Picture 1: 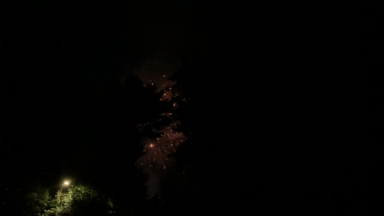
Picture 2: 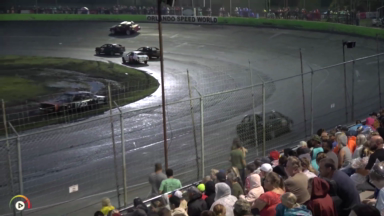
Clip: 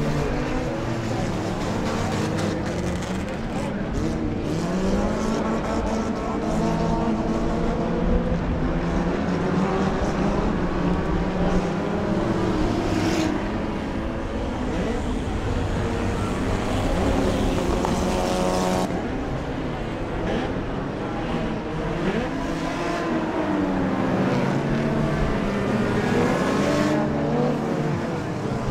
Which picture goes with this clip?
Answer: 2